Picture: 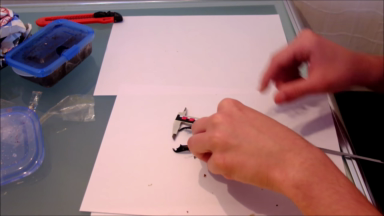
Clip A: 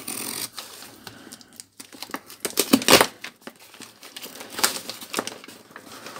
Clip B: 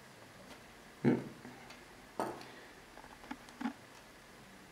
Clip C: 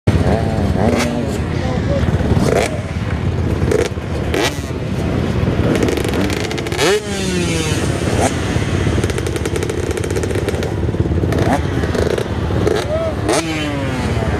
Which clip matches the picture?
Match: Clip B